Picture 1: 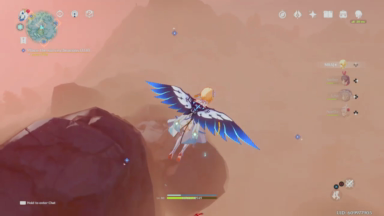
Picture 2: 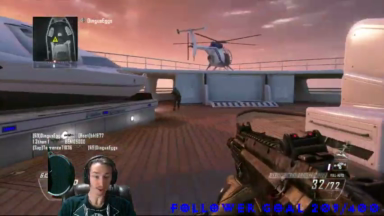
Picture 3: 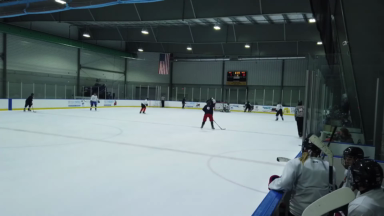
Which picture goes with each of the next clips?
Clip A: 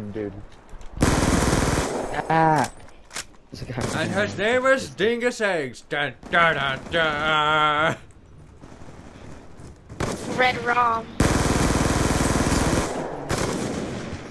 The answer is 2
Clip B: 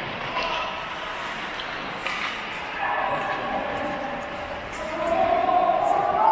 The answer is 3